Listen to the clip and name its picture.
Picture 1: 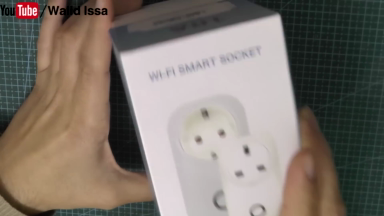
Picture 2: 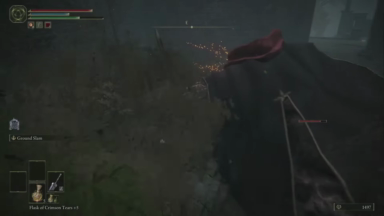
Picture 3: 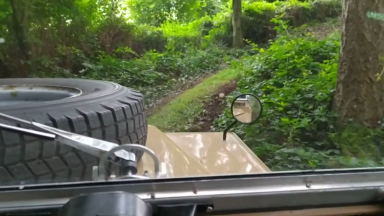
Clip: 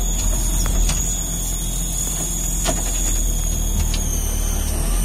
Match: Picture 3